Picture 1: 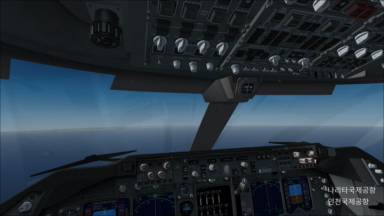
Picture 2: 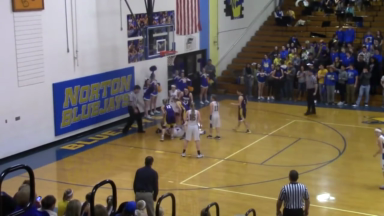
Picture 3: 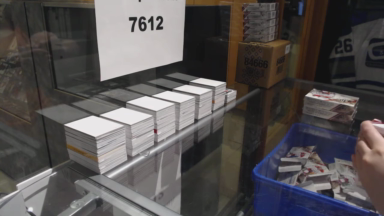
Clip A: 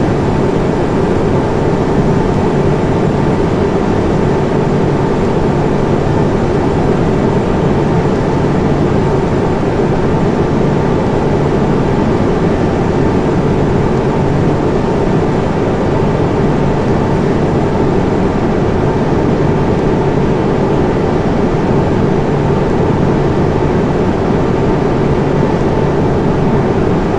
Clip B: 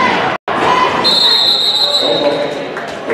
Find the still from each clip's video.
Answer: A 1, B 2